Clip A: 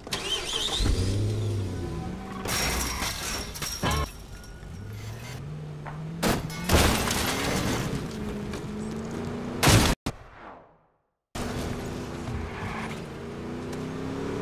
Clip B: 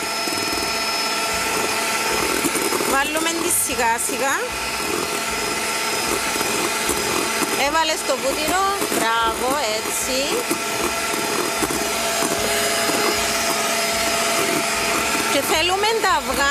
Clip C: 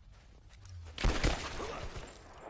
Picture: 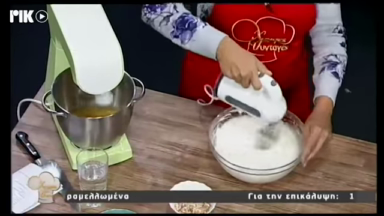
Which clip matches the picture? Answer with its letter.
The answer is B